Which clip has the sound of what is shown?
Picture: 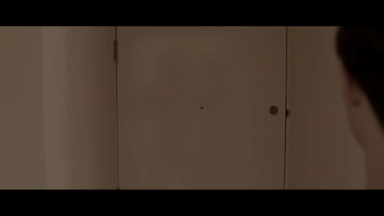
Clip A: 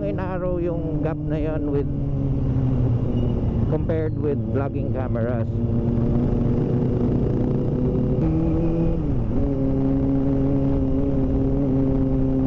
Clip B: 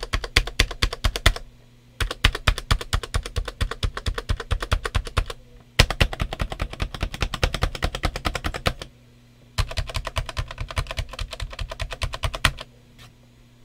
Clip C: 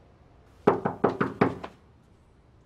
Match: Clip C